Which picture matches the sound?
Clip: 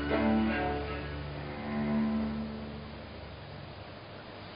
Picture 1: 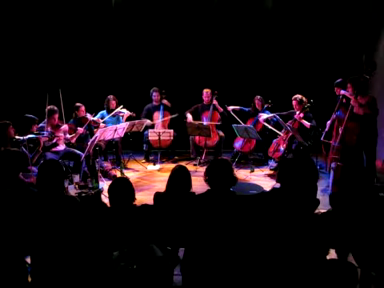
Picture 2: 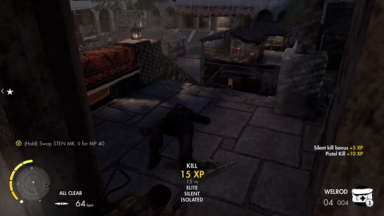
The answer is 1